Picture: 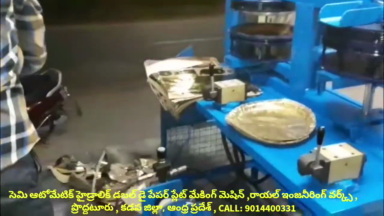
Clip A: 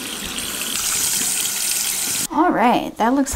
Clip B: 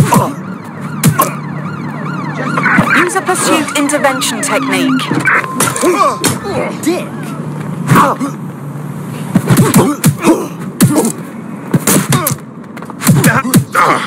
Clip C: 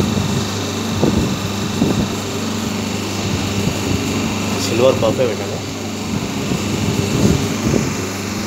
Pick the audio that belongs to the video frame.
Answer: C